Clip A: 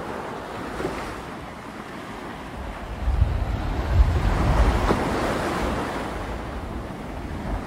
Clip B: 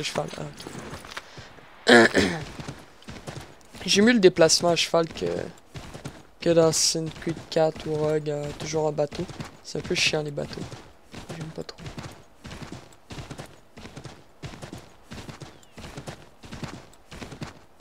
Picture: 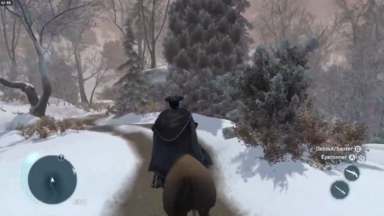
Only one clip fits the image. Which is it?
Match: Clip B